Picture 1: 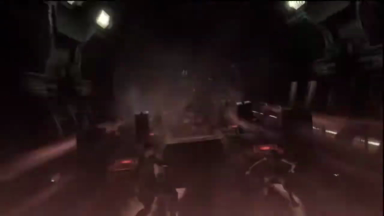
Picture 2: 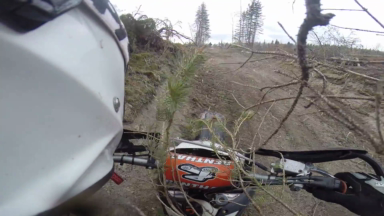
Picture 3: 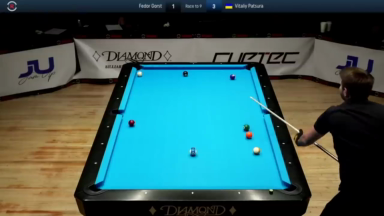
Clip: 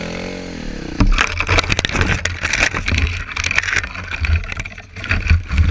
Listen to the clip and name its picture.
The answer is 2